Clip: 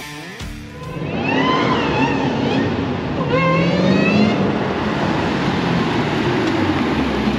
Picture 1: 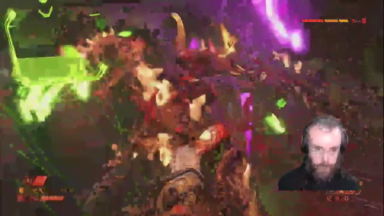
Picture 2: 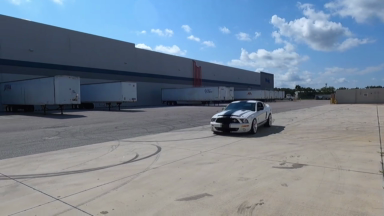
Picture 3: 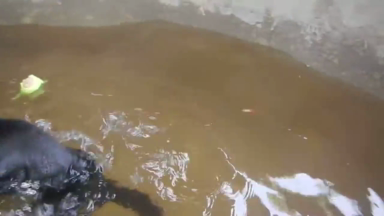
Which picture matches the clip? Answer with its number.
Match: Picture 2